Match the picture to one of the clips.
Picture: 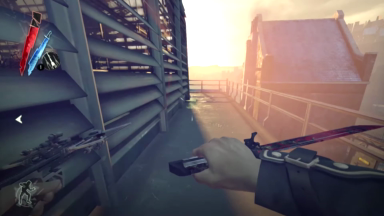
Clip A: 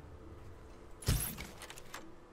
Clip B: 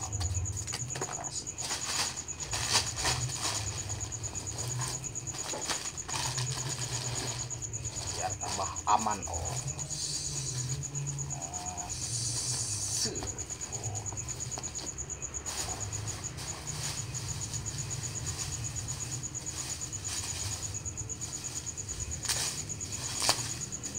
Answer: A